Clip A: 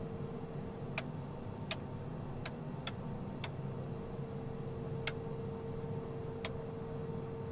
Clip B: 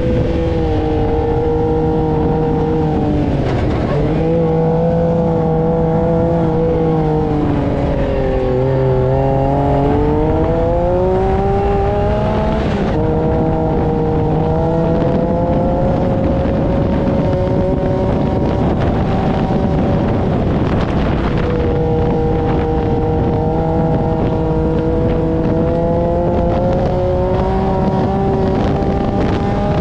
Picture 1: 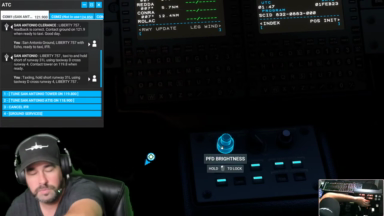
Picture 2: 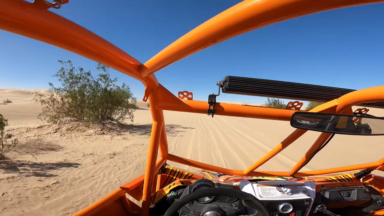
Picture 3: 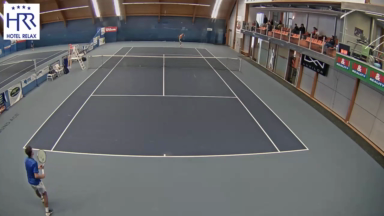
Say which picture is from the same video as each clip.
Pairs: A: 1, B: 2